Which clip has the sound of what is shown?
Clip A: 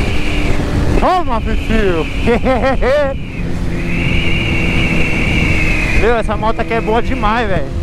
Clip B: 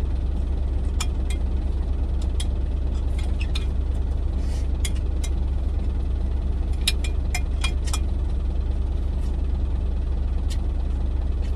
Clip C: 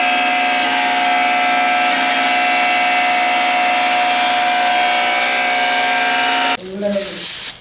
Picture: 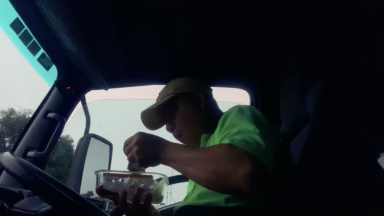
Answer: B